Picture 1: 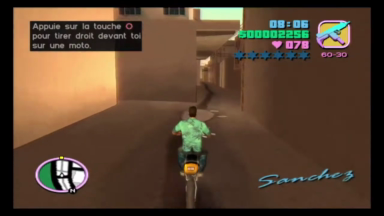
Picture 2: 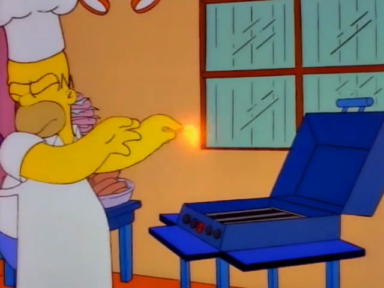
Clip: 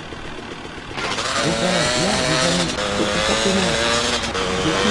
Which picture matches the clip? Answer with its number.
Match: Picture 1